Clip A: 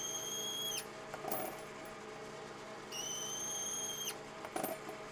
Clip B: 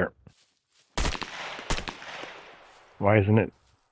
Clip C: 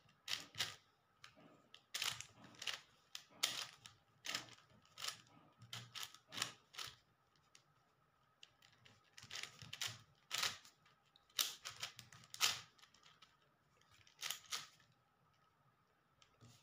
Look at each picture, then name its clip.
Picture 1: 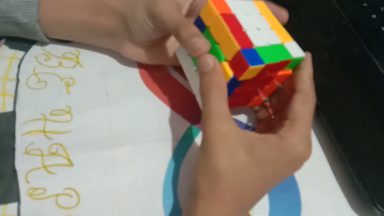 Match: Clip C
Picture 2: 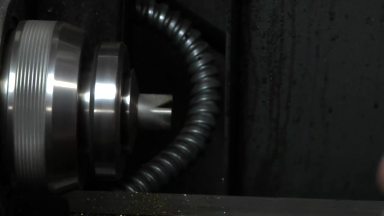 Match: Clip A